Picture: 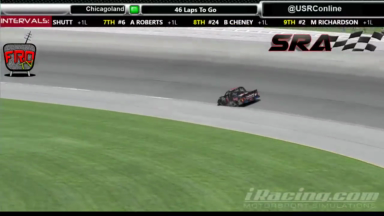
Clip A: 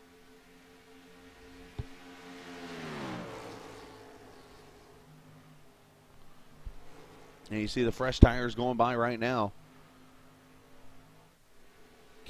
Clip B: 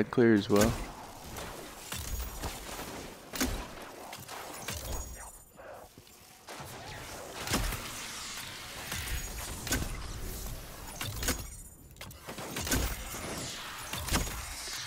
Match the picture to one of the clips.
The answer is A